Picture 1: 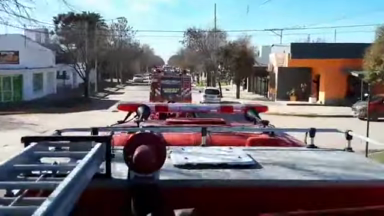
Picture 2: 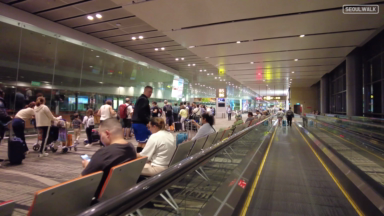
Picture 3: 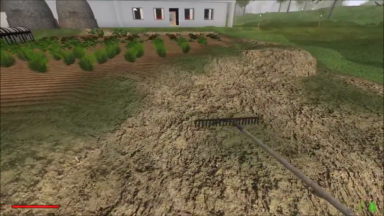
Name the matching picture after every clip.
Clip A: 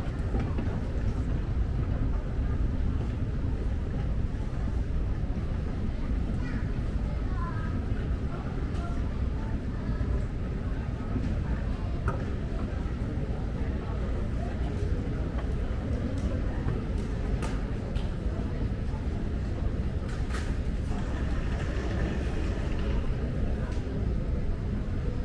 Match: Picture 2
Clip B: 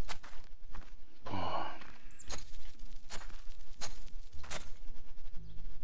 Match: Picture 3